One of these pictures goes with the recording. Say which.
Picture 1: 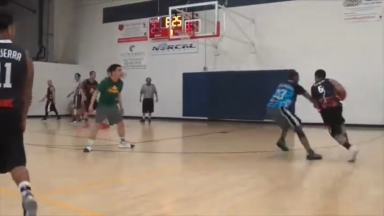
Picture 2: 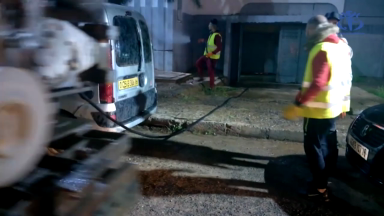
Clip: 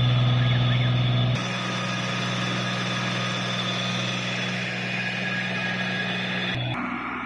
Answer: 2